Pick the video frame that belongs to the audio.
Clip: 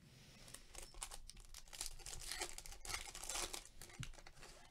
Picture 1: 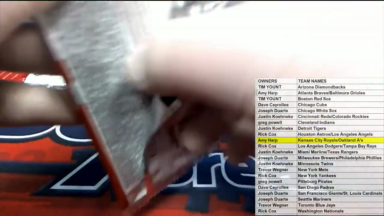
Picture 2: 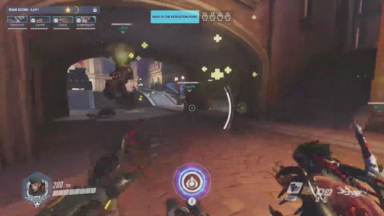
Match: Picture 1